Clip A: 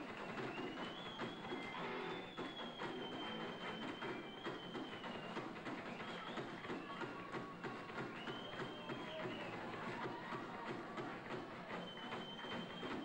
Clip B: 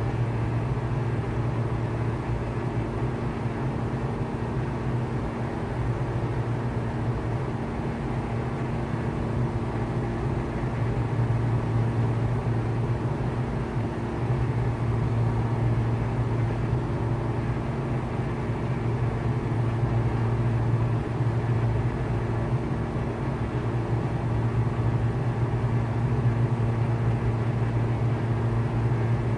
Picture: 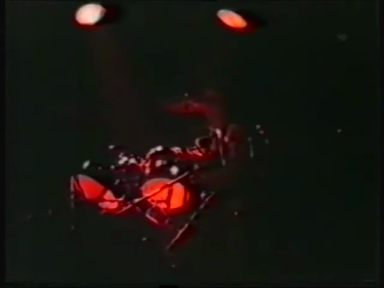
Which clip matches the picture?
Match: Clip A